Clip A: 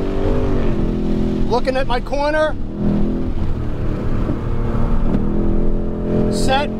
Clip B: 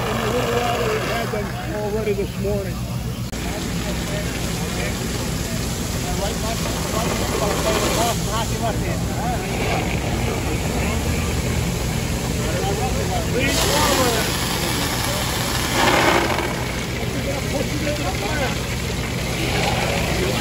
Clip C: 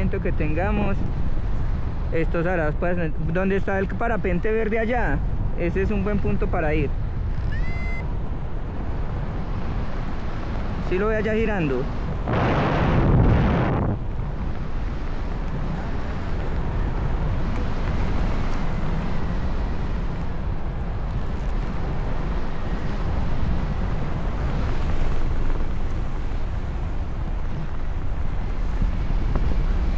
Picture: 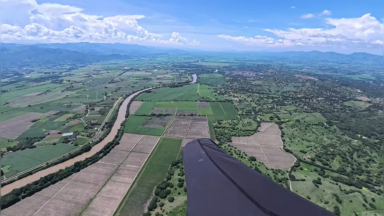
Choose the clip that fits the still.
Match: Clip C